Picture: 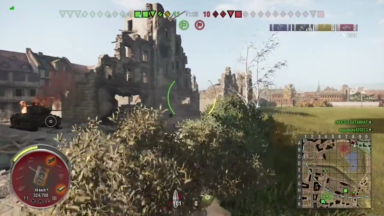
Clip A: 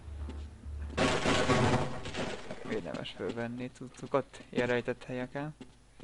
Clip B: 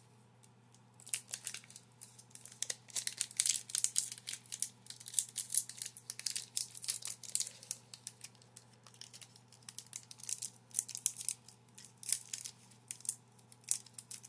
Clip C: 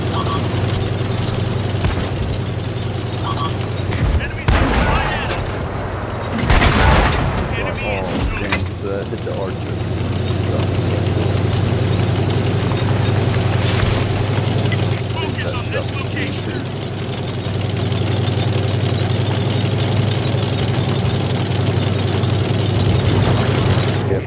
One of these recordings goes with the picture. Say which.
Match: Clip C